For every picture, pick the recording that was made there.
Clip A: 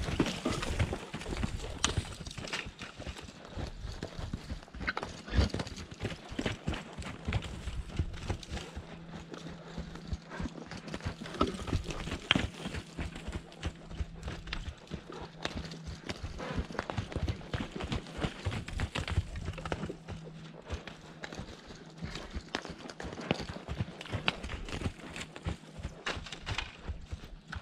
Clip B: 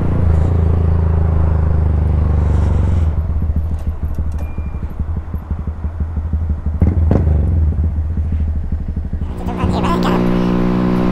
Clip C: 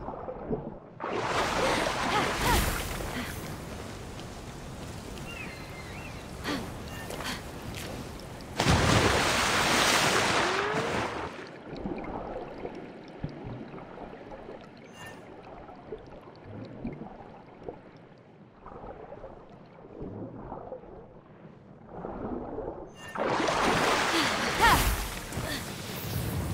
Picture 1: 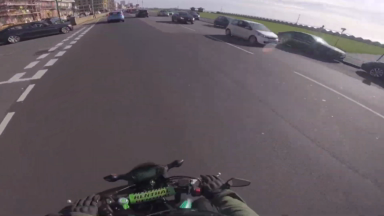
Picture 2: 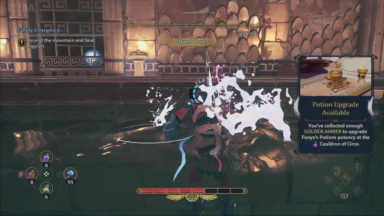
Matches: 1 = B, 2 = C